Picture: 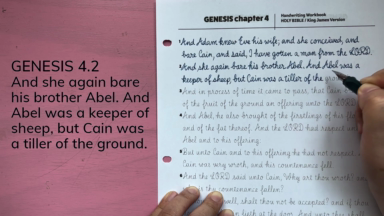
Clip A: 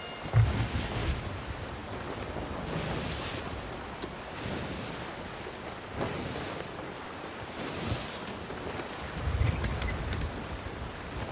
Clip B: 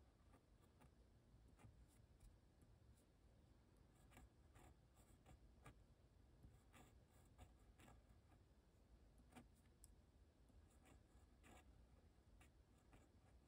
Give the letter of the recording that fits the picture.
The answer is B